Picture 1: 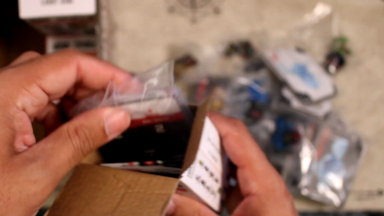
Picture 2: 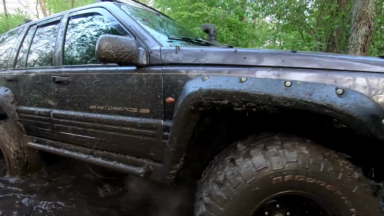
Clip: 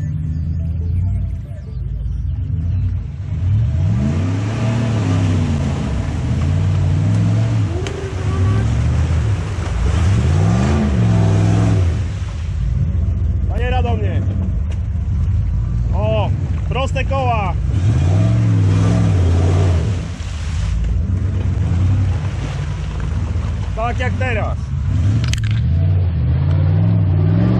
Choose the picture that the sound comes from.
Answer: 2